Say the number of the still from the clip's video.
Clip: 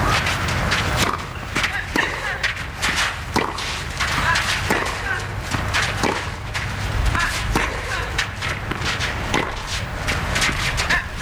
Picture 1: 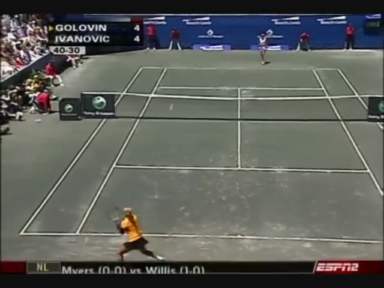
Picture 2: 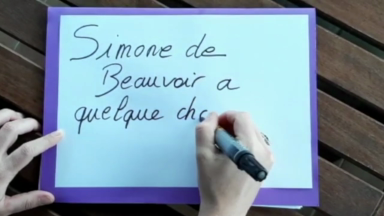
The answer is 1